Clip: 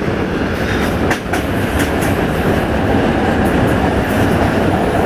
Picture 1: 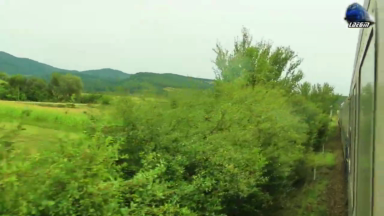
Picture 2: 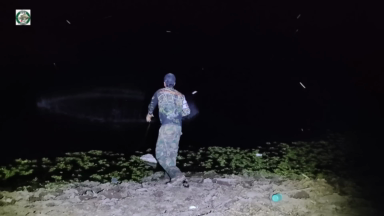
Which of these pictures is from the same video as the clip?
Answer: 1